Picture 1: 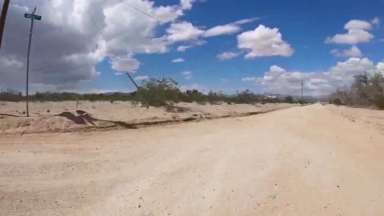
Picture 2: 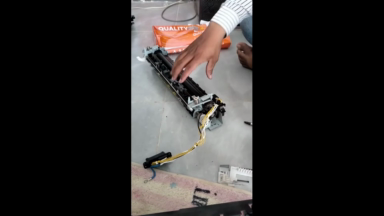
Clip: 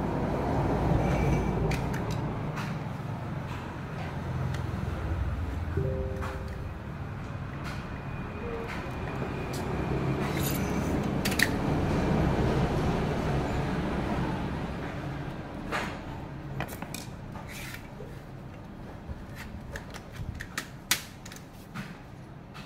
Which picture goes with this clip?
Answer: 2